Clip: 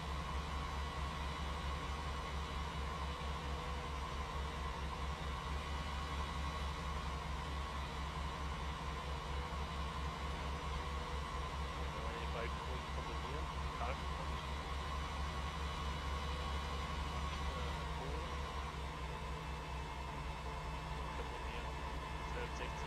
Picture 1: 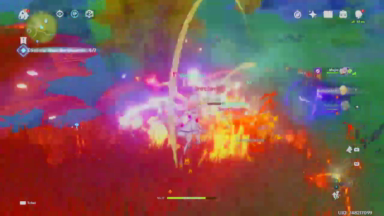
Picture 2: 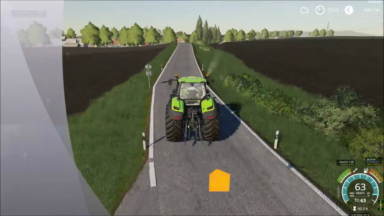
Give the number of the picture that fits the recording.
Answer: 2